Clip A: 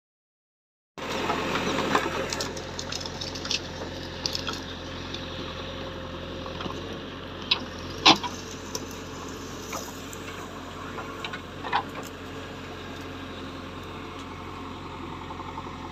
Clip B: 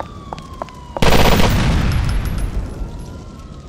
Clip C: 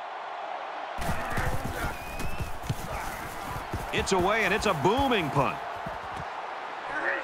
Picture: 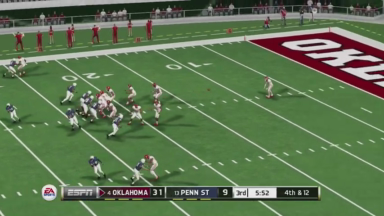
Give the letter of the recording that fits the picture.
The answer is C